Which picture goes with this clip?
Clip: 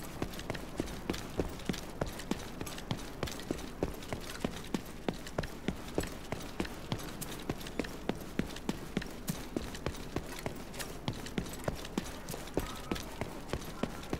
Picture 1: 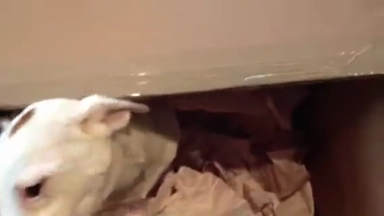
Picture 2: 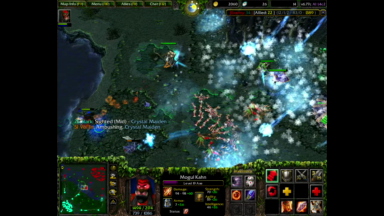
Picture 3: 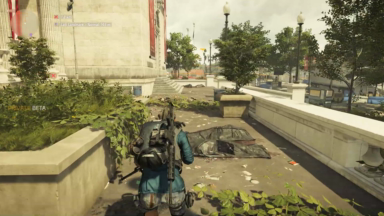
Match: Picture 3